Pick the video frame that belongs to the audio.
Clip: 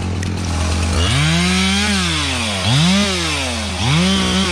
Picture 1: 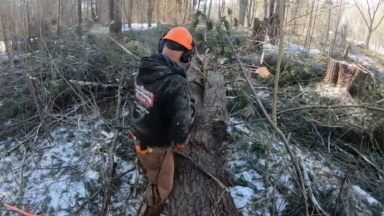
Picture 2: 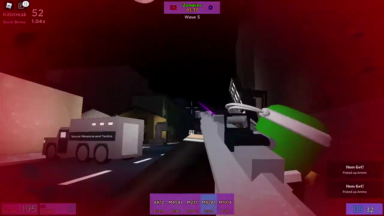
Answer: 1